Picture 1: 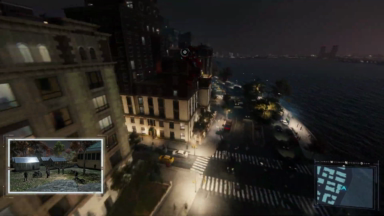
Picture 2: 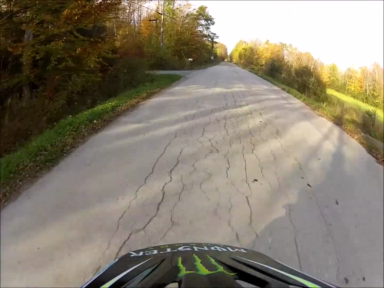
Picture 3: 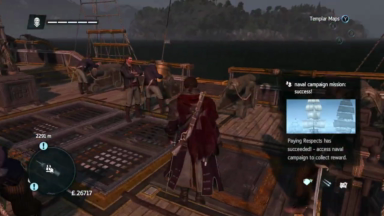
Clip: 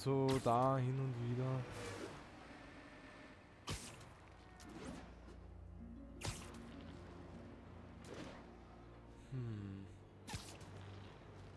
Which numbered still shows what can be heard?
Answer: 1